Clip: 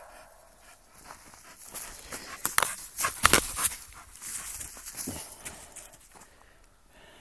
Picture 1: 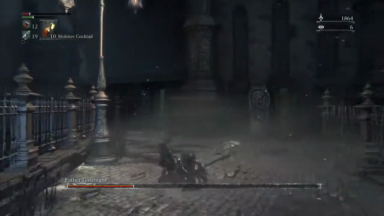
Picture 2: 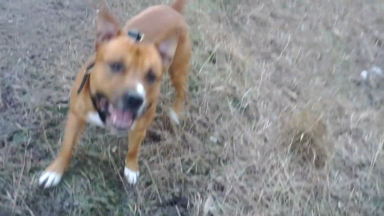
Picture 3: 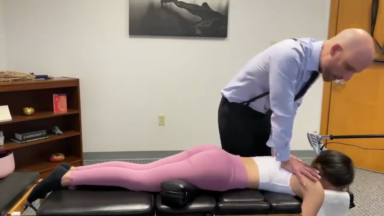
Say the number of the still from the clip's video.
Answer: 2